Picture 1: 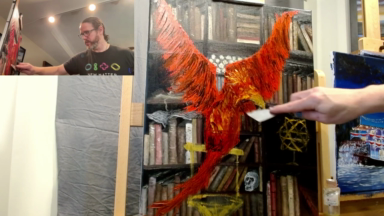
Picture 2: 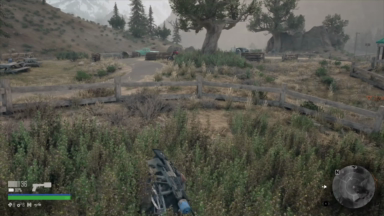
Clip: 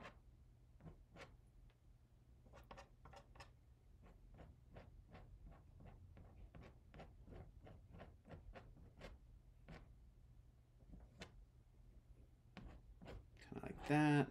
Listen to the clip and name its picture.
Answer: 1